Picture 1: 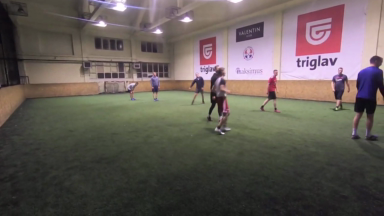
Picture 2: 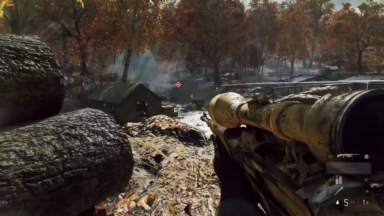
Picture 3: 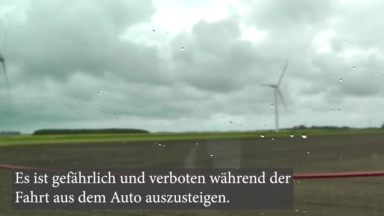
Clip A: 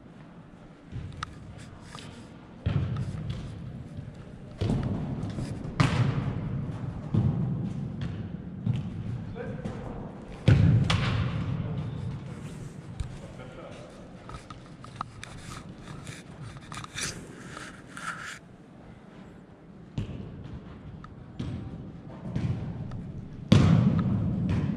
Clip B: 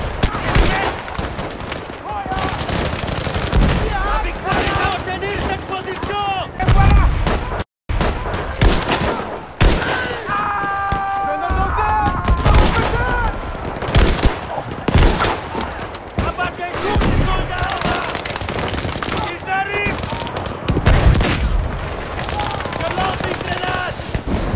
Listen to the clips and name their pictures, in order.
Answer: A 1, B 2